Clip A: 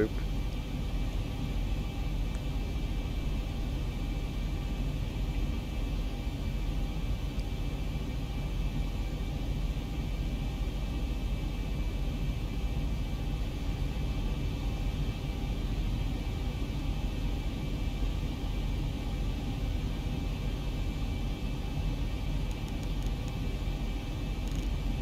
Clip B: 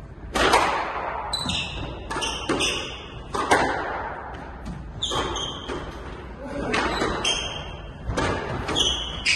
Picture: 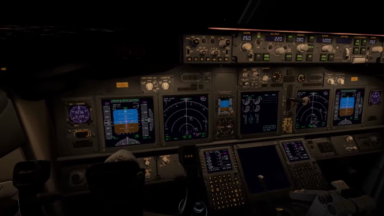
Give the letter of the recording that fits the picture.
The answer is A